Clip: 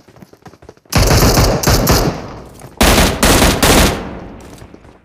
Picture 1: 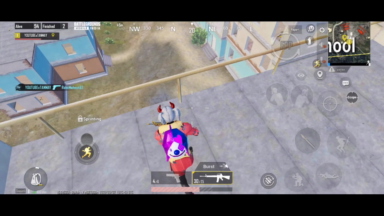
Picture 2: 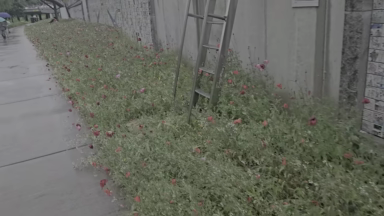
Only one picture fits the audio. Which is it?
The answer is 1